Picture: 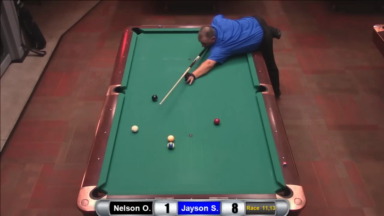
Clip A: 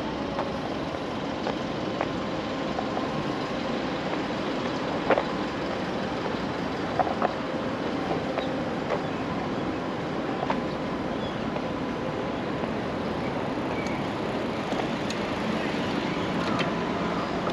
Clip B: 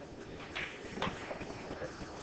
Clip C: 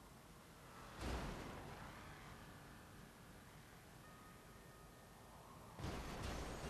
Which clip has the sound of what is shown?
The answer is B